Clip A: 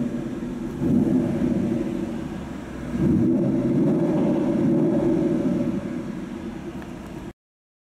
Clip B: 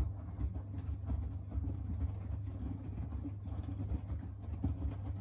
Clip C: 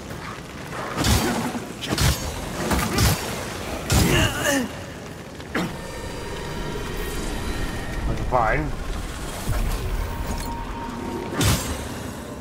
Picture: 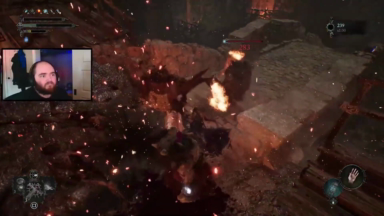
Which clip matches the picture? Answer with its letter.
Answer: C